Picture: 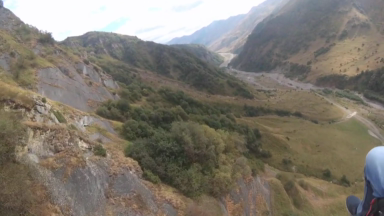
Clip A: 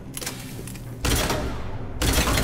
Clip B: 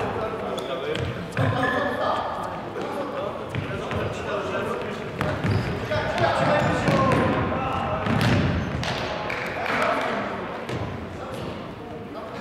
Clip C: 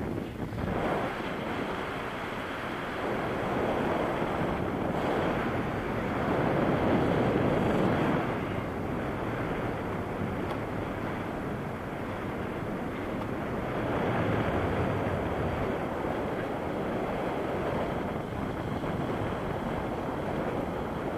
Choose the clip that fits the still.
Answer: C